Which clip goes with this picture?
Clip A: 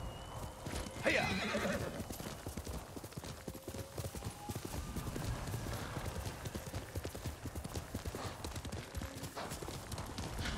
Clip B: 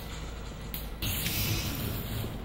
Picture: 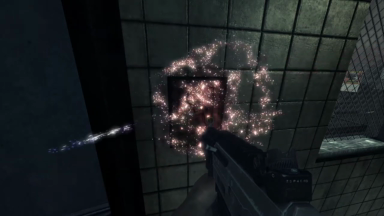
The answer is B